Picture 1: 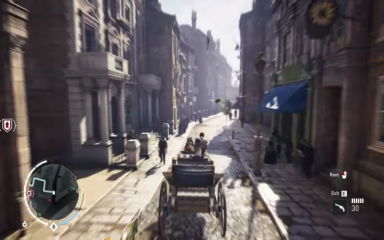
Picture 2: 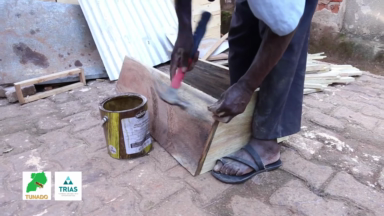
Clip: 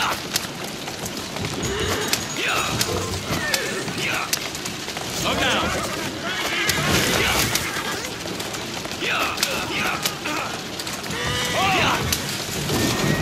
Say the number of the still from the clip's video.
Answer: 1